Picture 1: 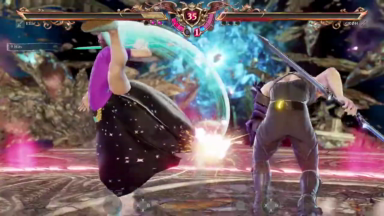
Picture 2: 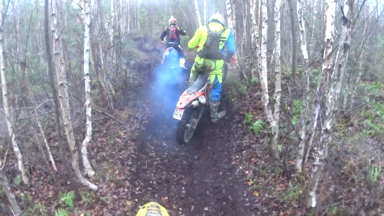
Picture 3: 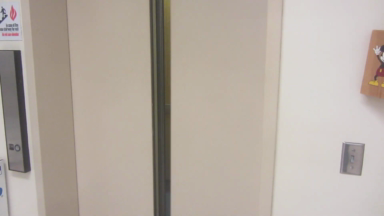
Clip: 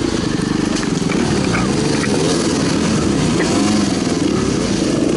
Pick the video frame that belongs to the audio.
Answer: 2